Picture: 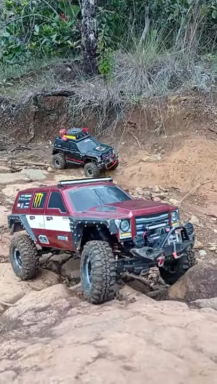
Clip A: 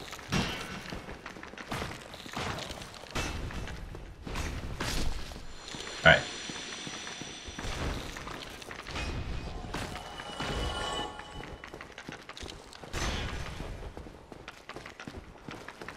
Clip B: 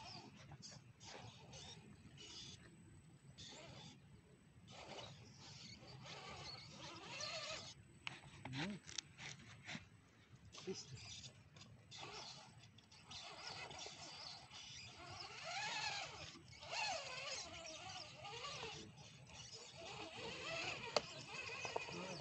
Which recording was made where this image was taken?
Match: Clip B